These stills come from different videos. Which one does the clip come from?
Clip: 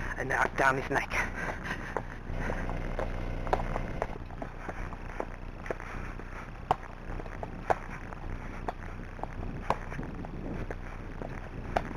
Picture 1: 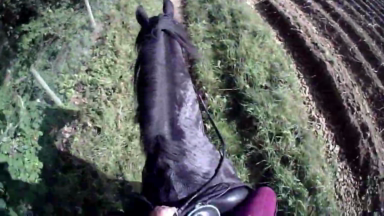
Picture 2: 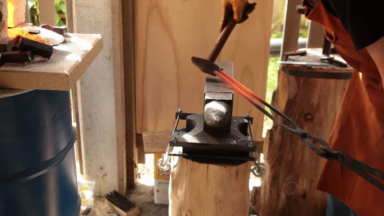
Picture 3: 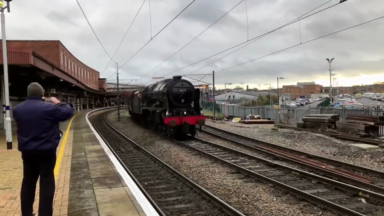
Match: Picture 1